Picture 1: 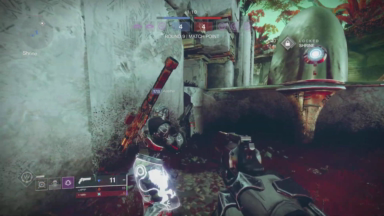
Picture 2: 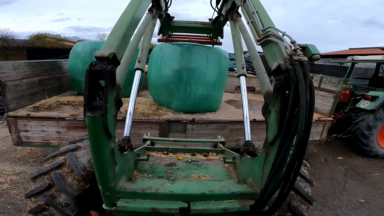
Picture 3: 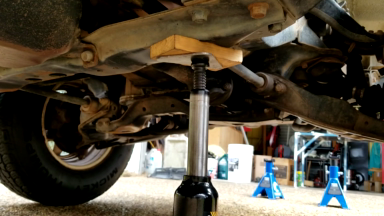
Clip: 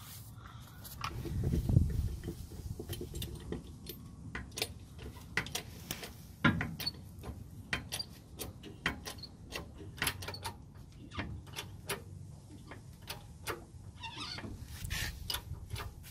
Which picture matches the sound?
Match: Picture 3